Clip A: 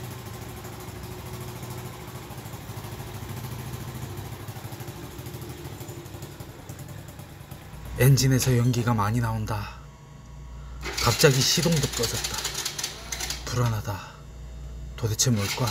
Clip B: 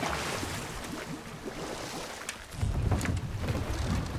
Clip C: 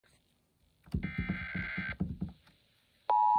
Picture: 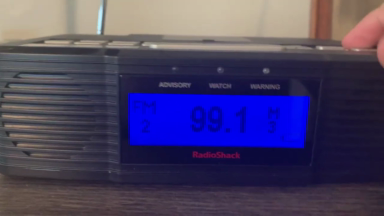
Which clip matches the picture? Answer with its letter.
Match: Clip C